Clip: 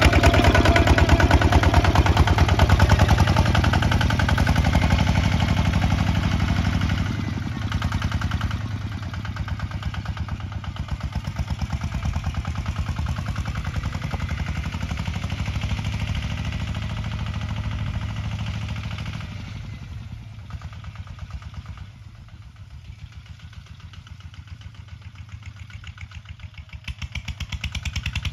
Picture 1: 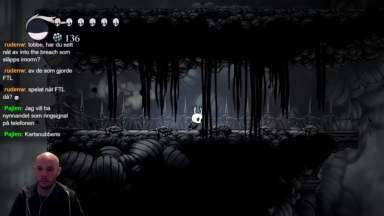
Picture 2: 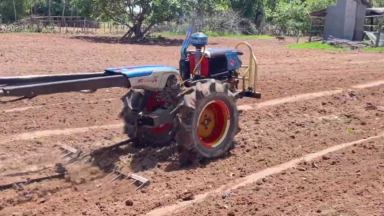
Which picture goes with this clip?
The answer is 2